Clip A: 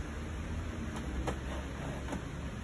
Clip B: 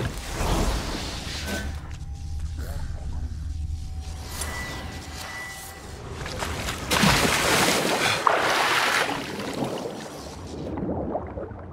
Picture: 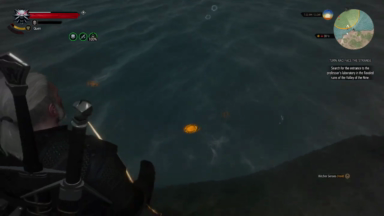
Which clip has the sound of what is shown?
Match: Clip B